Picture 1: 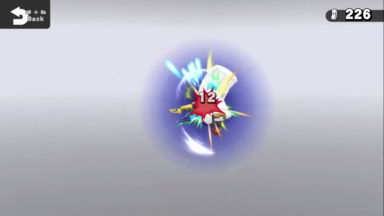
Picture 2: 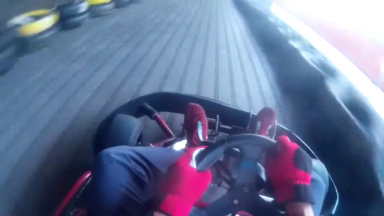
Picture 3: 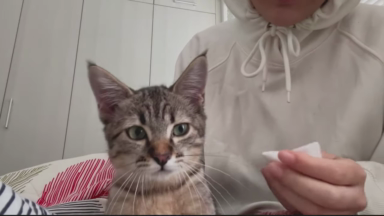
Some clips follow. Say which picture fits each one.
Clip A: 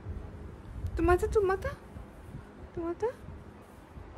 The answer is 3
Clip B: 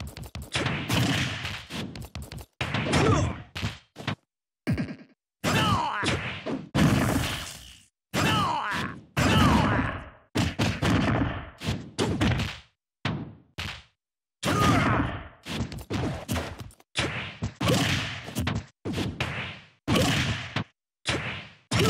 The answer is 1